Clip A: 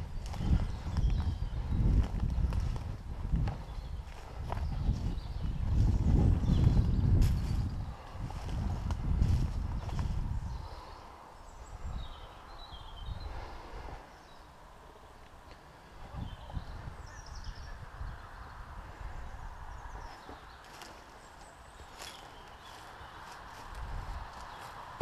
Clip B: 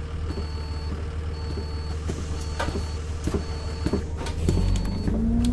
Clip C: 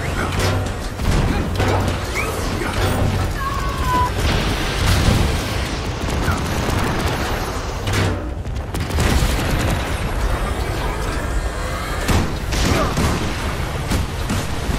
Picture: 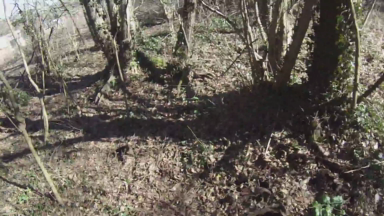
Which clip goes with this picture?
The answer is A